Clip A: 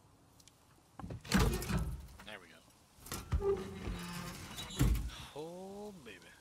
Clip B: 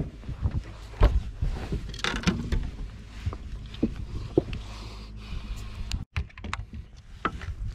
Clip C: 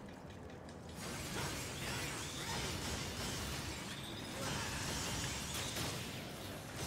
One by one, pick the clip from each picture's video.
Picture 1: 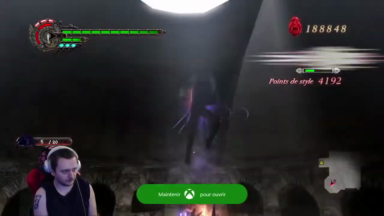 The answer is C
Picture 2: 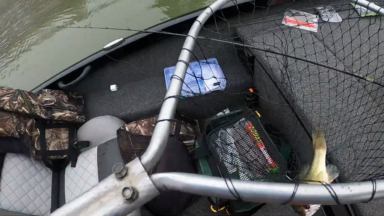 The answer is B